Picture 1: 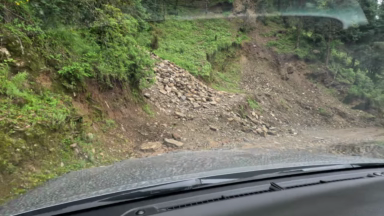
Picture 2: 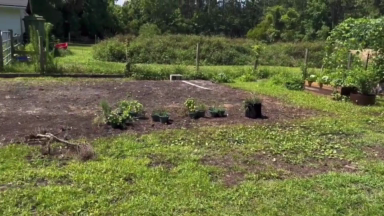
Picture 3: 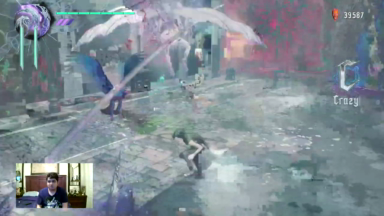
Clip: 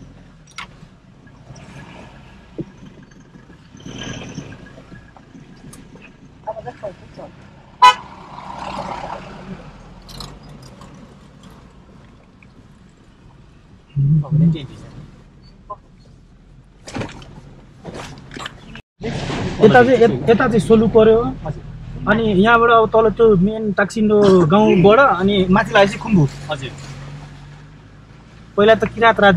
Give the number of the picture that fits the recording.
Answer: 1